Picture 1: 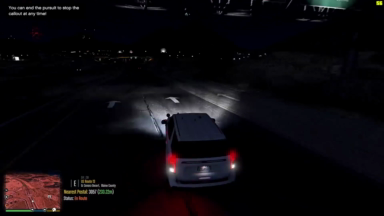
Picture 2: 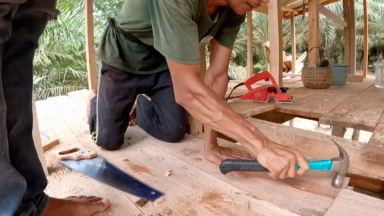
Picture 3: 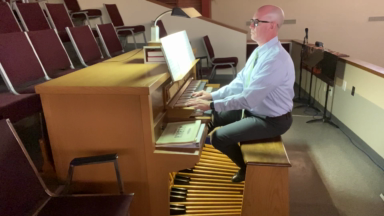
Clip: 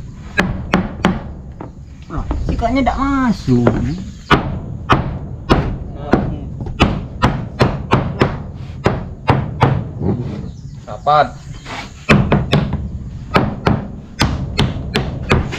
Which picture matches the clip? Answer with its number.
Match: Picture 2